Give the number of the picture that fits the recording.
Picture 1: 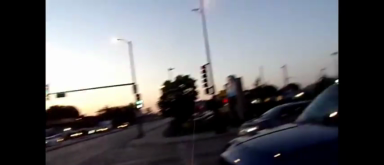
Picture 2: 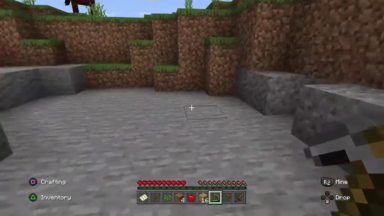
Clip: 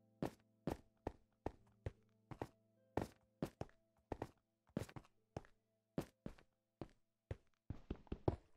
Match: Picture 2